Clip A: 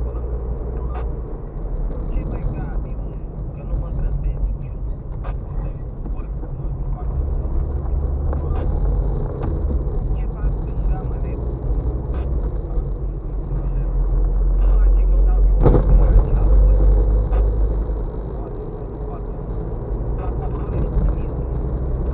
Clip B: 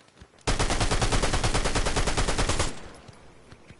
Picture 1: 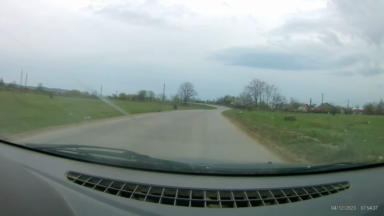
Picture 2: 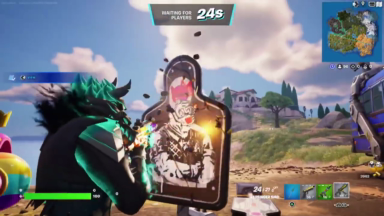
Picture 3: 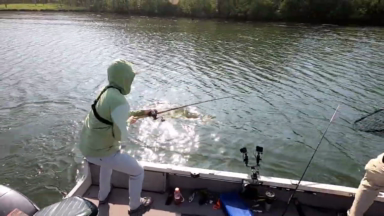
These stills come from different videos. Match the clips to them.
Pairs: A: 1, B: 2